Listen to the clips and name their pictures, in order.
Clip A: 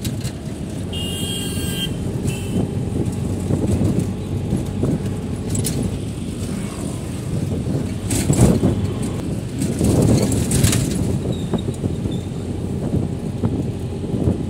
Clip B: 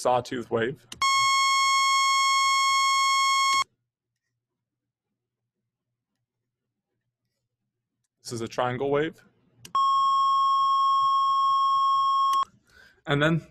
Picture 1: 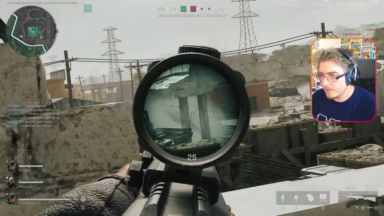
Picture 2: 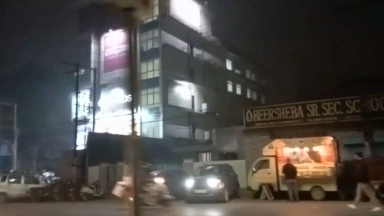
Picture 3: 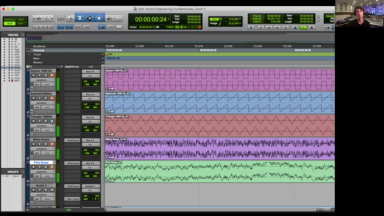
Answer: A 2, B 3